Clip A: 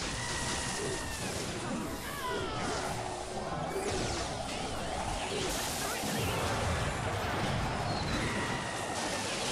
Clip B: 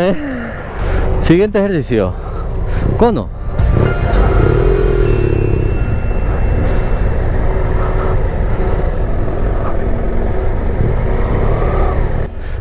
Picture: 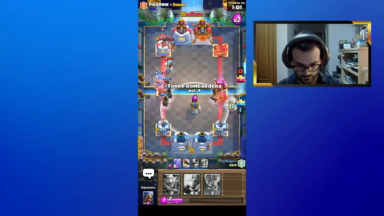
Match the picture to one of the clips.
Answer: A